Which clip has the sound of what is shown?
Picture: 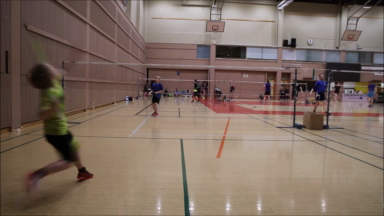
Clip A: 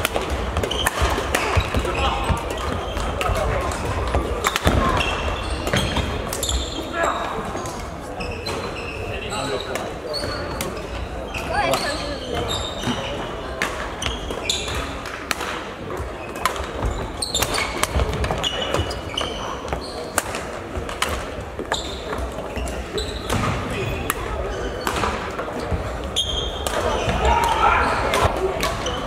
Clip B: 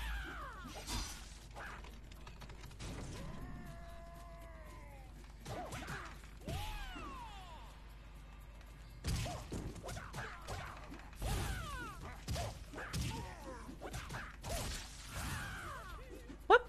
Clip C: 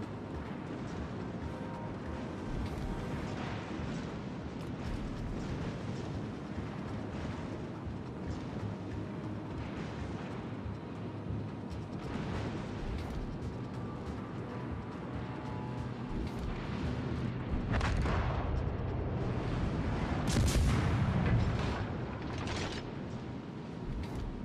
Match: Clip A